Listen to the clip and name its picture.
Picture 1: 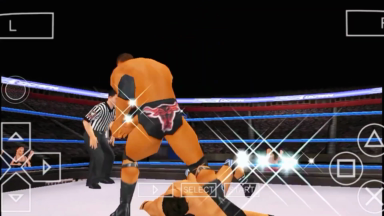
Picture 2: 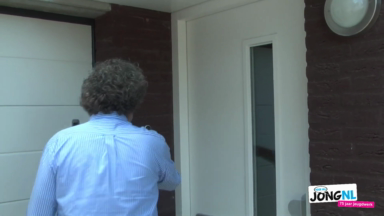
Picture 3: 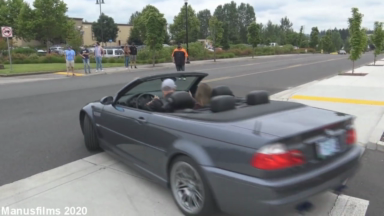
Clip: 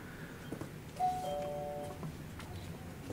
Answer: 2